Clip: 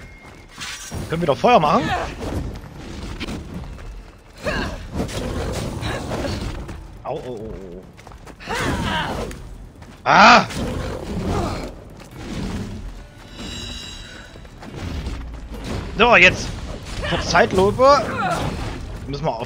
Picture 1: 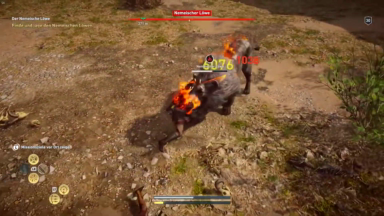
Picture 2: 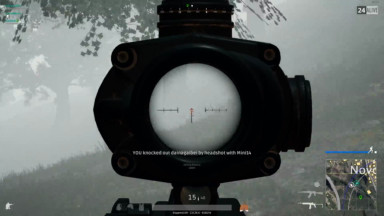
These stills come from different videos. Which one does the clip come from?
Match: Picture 1